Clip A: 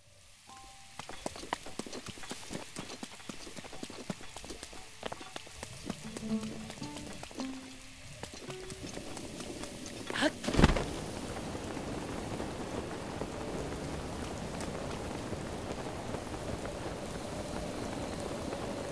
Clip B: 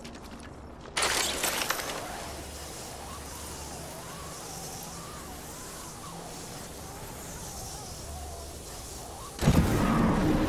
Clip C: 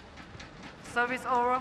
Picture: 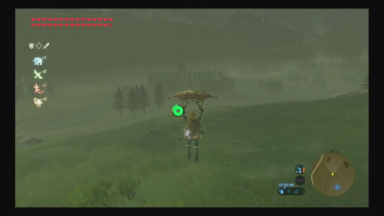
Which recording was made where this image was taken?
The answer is A